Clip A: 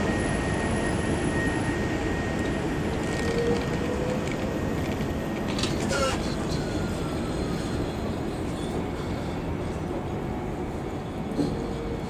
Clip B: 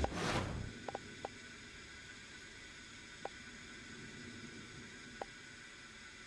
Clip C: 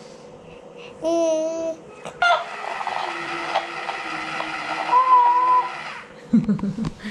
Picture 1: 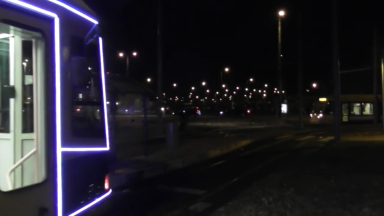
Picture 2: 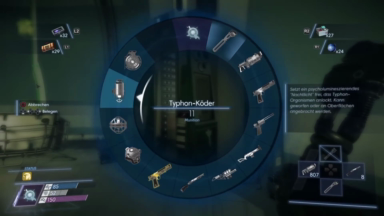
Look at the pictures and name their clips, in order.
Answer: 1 A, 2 B